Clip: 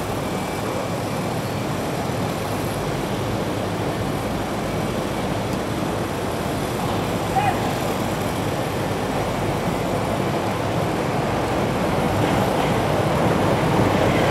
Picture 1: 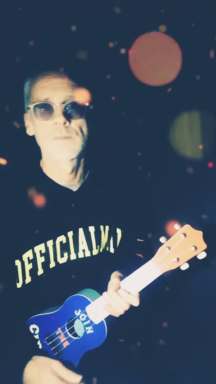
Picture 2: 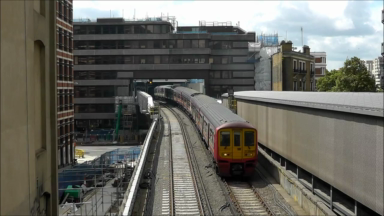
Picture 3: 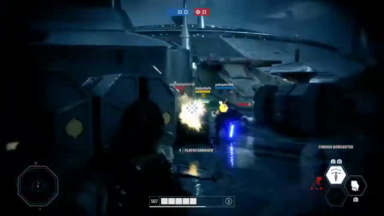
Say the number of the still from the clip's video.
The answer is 2